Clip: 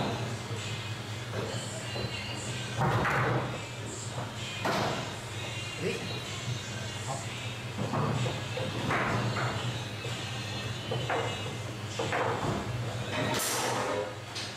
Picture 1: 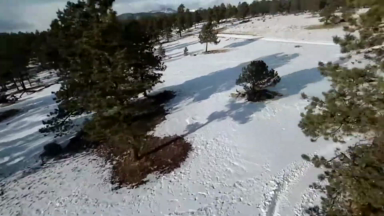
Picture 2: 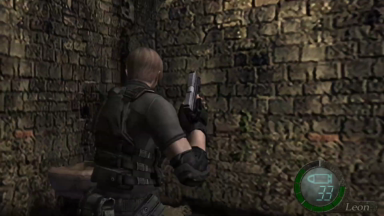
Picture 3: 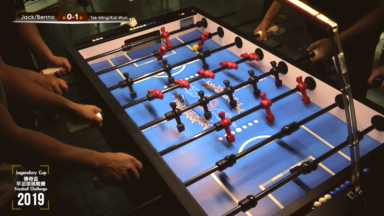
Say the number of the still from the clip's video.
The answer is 3